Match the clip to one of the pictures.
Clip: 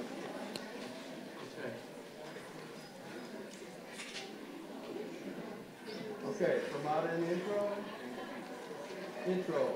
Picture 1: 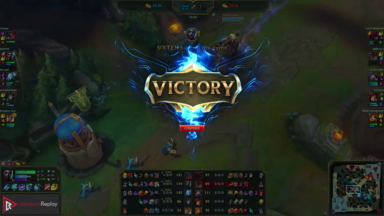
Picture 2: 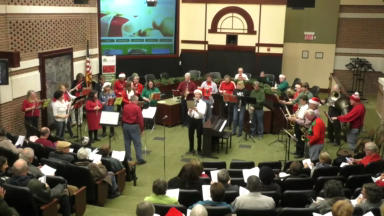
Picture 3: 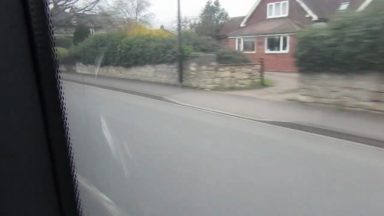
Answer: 2